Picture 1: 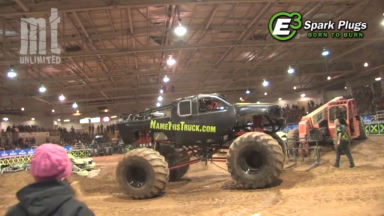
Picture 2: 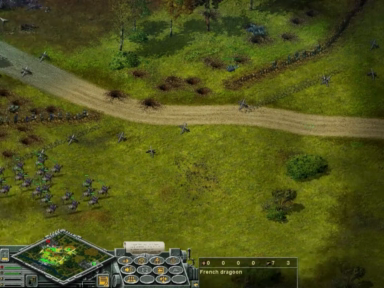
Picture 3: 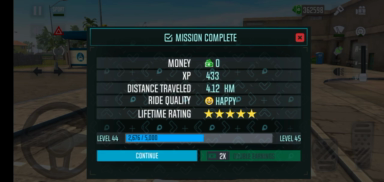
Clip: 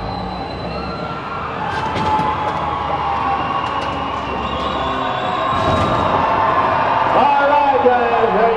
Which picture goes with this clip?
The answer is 1